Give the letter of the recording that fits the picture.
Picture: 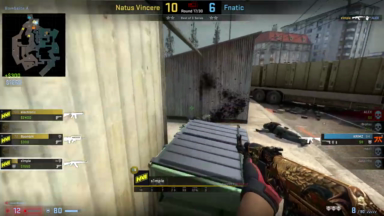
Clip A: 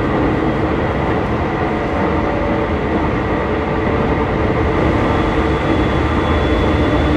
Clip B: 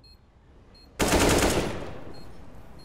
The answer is B